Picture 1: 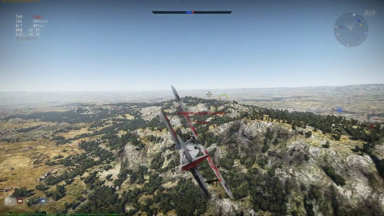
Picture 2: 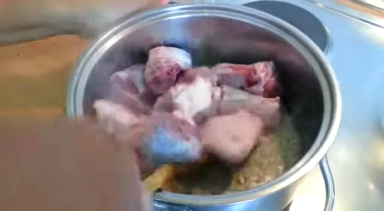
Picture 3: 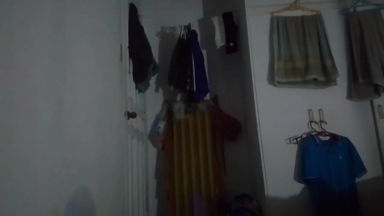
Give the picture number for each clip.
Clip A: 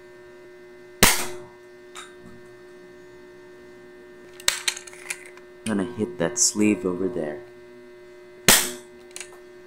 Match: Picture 3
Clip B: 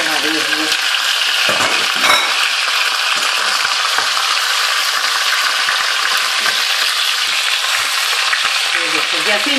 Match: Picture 2